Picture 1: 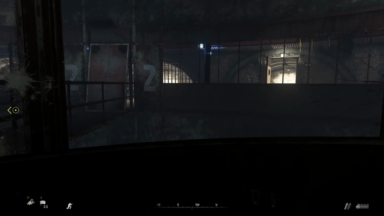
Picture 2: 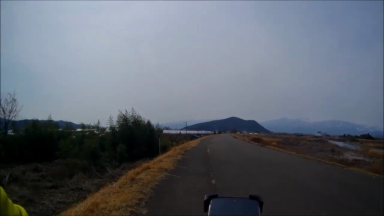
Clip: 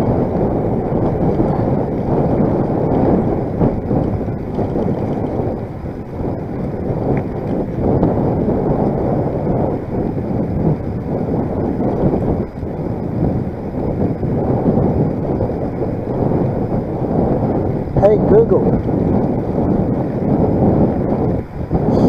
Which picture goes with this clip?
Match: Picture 2